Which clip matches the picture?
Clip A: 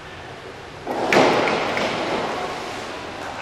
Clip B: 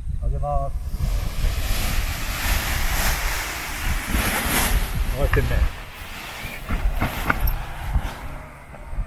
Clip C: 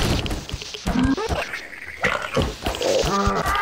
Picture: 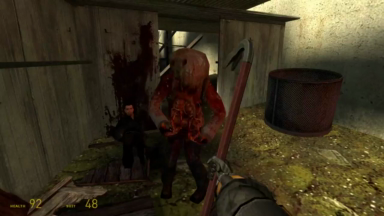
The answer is C